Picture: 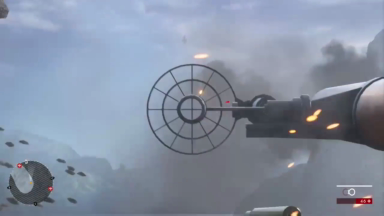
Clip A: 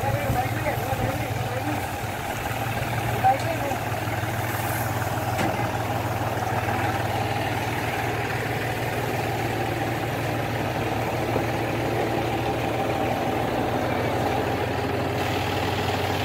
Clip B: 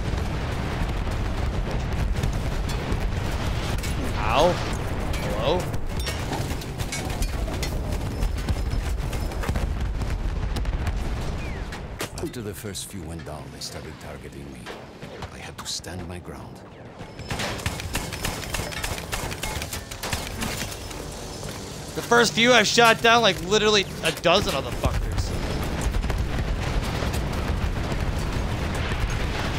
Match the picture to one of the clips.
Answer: B